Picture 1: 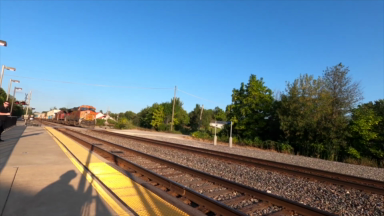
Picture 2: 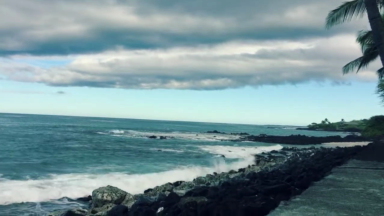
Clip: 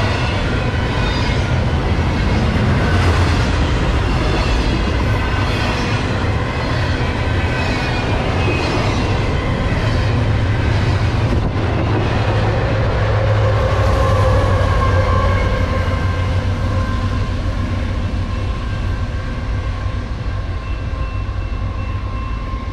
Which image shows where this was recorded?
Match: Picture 1